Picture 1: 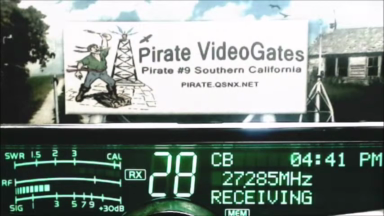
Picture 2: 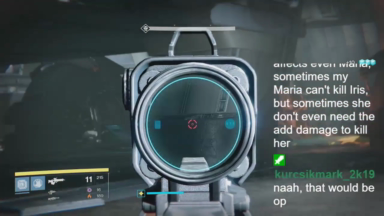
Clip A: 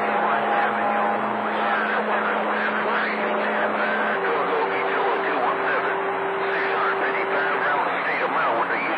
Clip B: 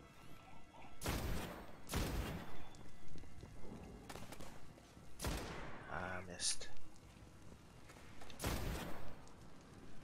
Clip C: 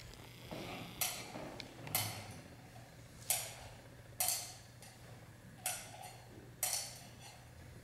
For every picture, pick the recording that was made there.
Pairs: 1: A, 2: B